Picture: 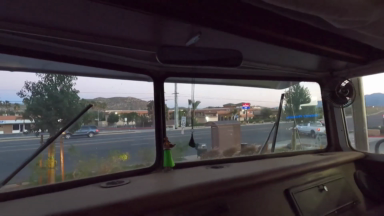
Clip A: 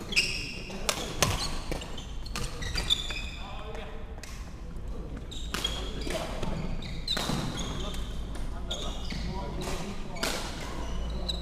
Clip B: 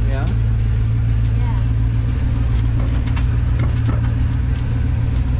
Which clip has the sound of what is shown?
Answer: B